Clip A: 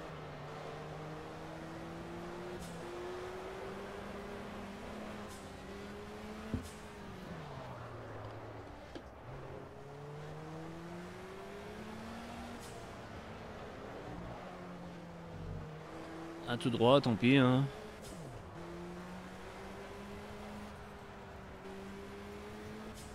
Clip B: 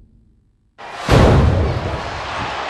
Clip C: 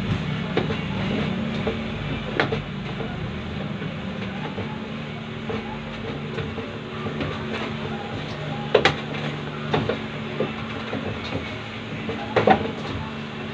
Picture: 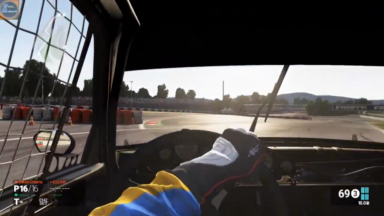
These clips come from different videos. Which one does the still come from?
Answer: A